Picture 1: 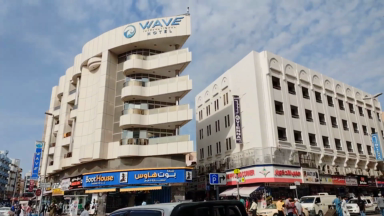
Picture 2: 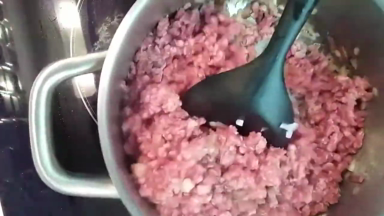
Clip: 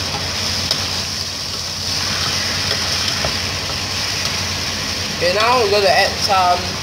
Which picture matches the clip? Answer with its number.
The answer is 2